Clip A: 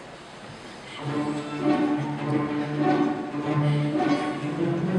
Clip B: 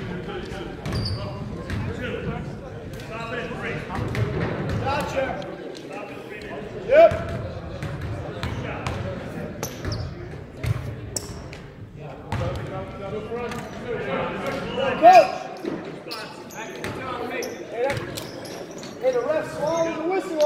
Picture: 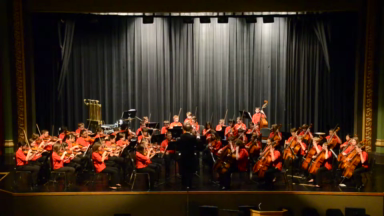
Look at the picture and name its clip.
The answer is A